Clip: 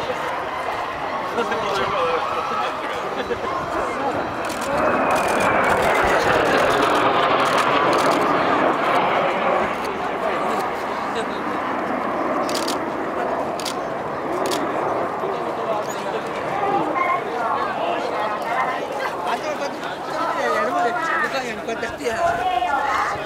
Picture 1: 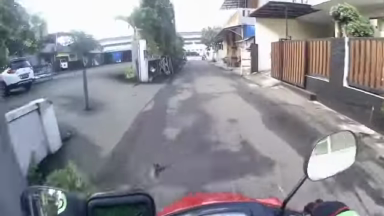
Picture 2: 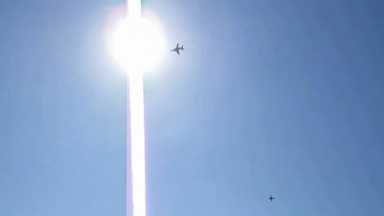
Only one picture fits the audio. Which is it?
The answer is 2